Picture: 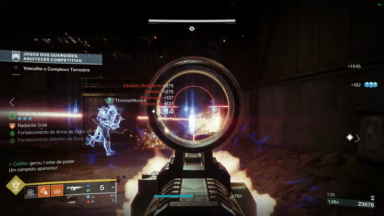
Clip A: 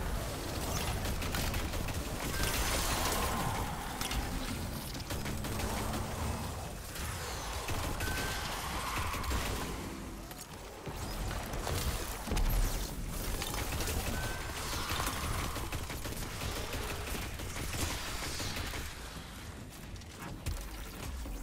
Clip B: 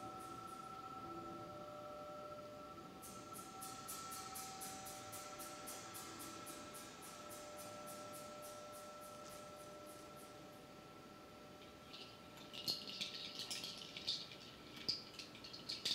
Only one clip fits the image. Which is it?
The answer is A